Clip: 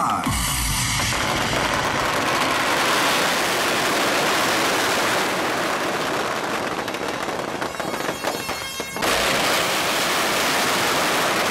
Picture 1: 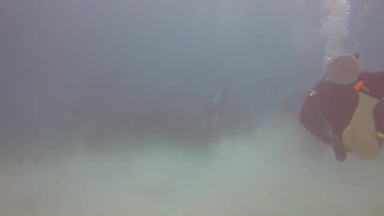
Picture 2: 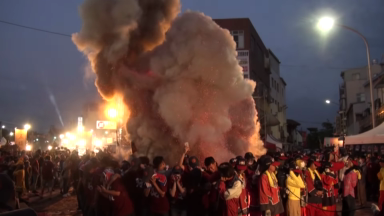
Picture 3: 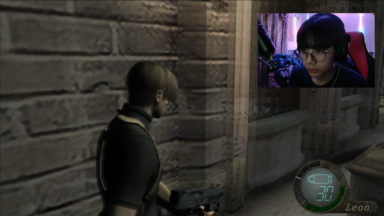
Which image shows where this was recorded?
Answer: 2